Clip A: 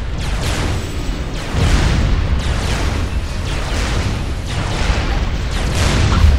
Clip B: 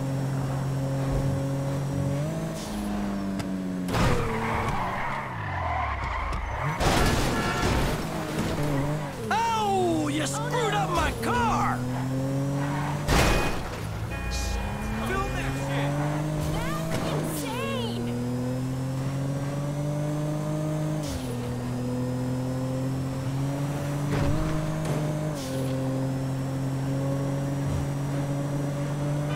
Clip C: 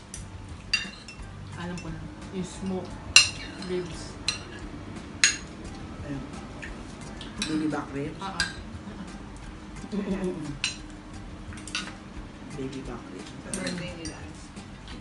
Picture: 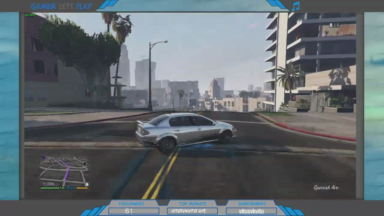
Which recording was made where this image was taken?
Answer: B